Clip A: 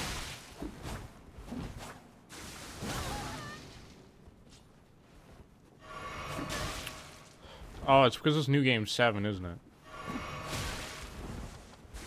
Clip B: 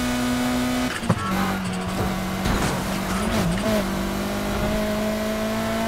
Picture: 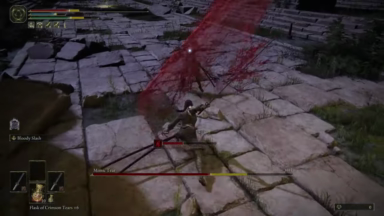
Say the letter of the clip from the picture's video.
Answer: A